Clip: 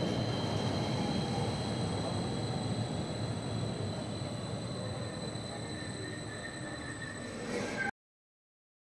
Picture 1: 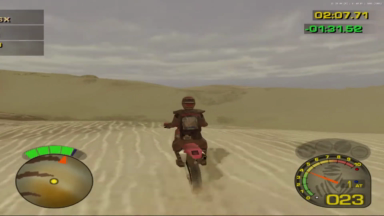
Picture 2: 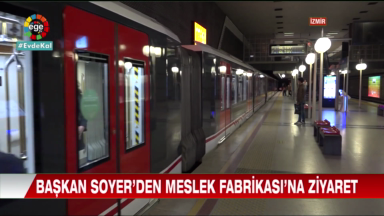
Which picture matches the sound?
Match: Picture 2